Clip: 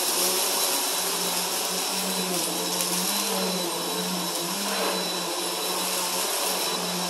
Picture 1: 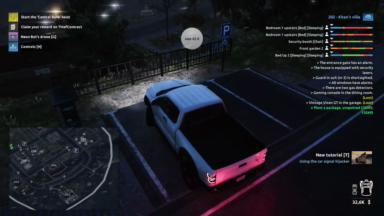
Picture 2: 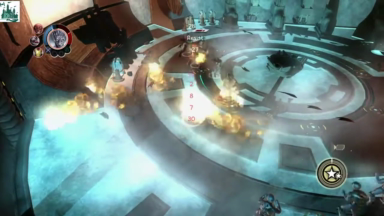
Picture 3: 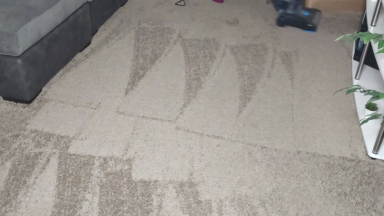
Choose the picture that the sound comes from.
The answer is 3